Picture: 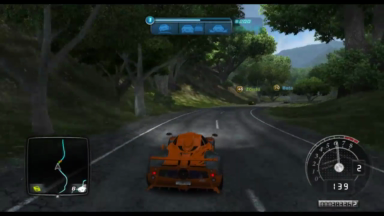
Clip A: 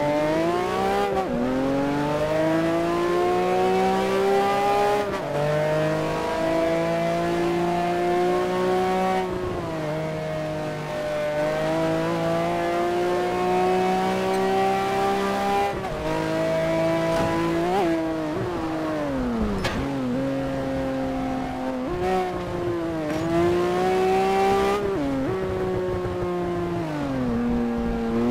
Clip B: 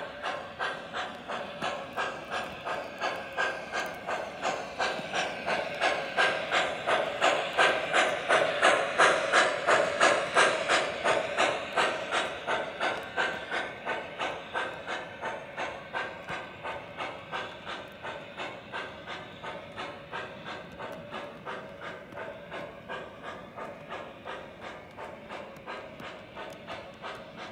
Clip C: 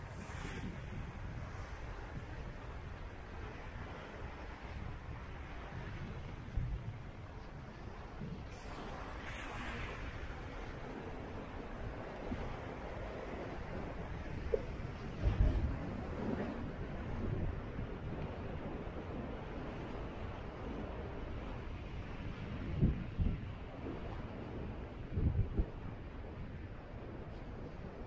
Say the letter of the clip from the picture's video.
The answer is A